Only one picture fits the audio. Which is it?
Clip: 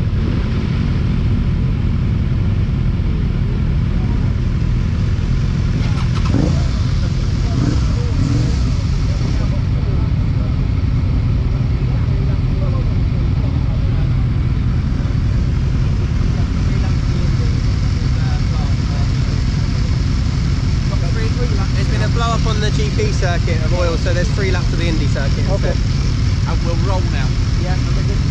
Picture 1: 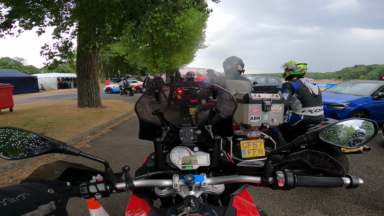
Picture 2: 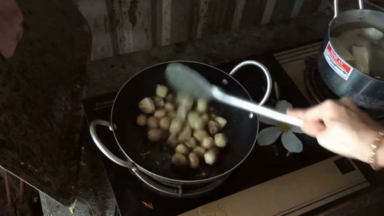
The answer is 1